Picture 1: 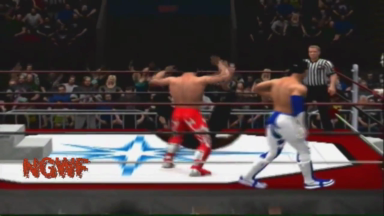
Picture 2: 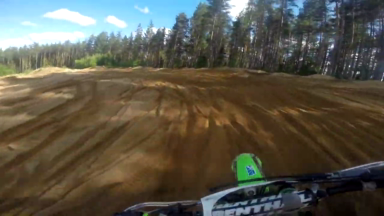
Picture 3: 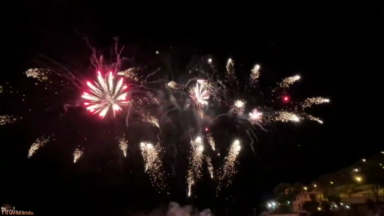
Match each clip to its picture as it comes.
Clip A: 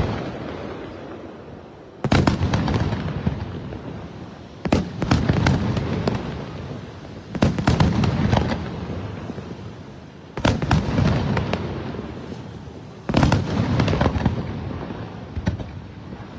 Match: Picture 3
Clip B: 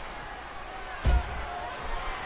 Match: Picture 1